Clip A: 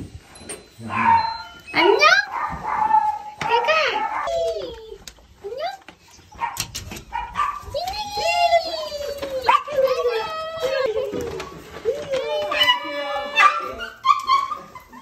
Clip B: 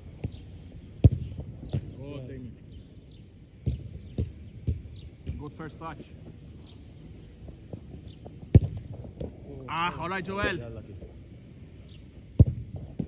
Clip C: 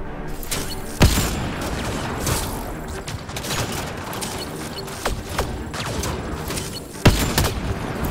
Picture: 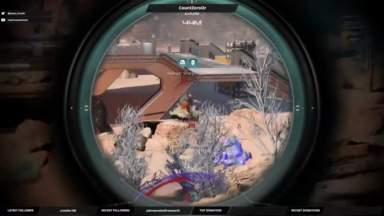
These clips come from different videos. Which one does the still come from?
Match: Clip C